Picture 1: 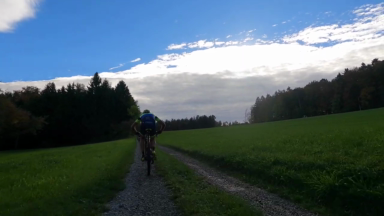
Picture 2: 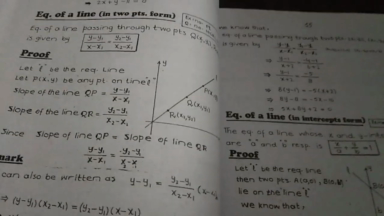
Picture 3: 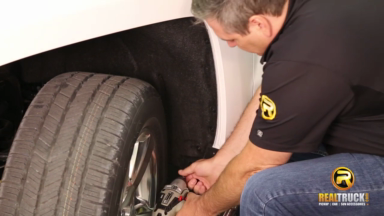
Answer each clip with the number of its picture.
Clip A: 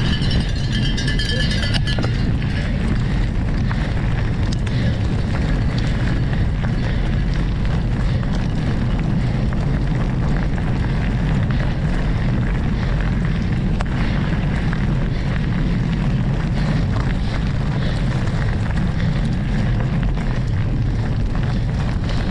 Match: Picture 1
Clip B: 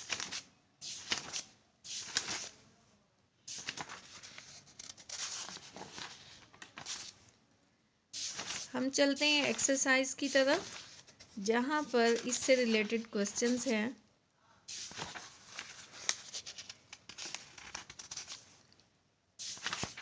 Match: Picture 2